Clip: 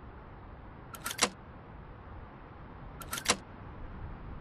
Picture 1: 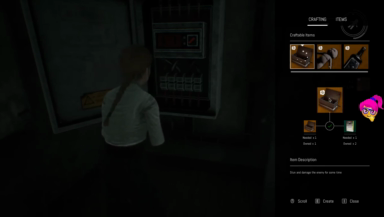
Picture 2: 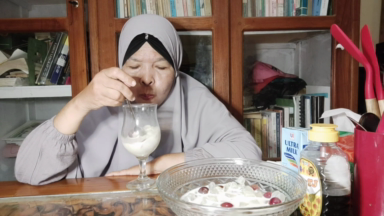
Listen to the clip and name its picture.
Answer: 1